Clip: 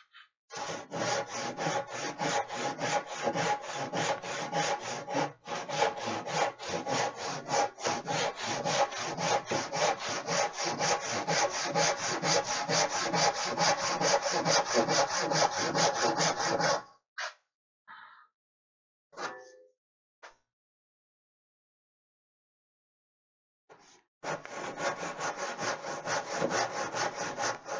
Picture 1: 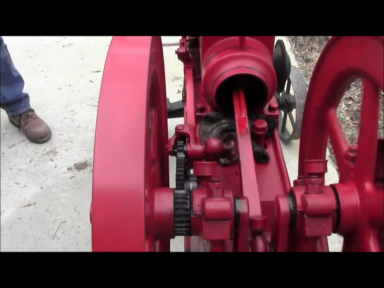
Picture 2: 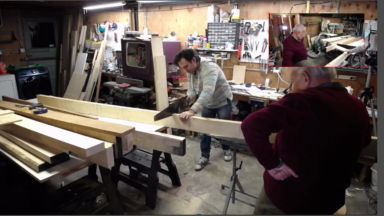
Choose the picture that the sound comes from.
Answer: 2